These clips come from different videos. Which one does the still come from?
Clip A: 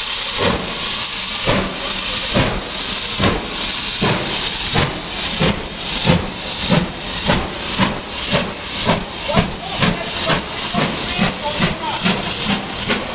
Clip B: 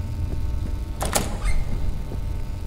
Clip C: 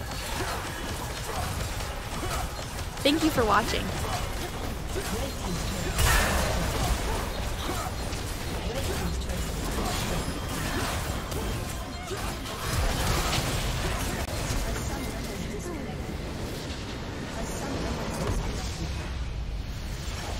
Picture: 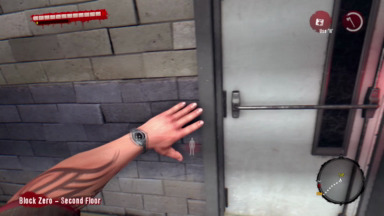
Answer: B